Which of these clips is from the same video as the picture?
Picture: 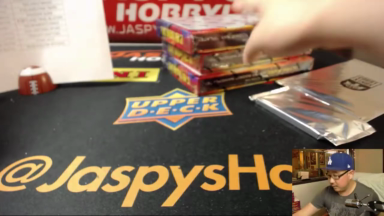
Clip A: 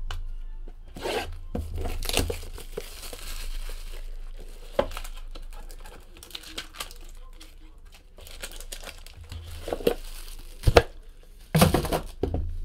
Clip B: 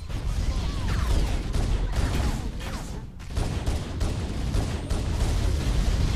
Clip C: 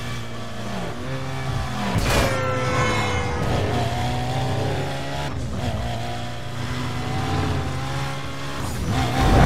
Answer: A